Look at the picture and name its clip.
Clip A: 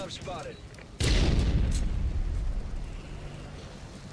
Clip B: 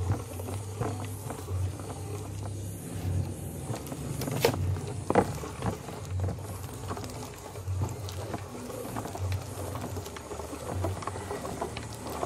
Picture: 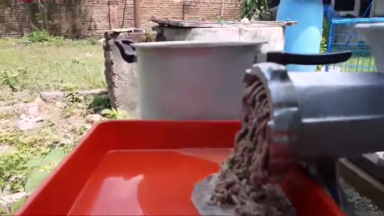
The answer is B